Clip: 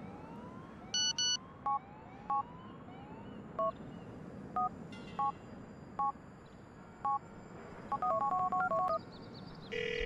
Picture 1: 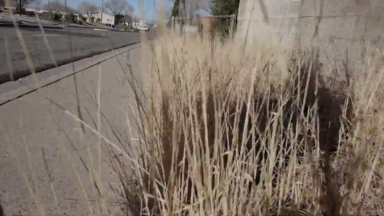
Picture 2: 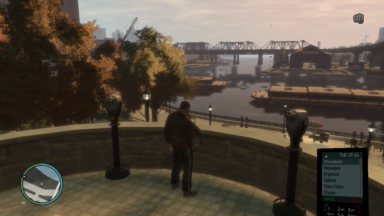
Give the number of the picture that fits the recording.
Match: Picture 2